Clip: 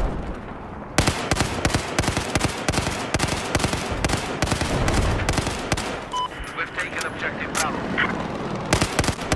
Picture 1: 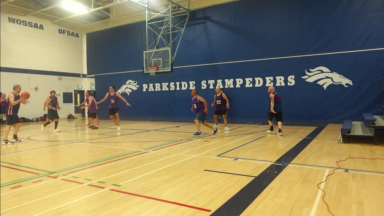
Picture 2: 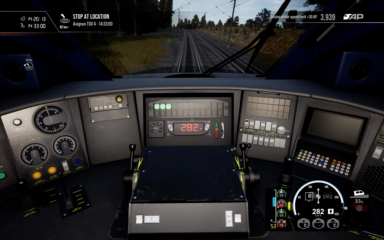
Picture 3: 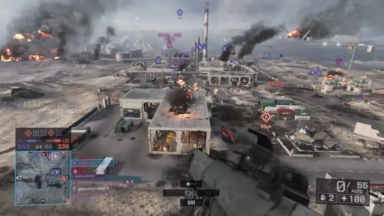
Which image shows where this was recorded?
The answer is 3